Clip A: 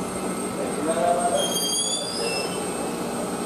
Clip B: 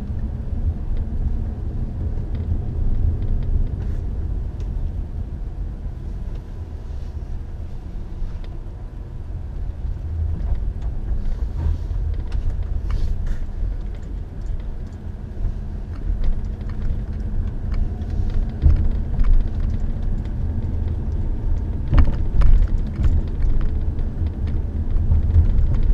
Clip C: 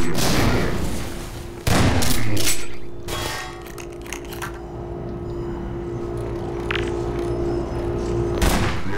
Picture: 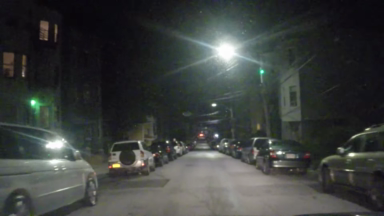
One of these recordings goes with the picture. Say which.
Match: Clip B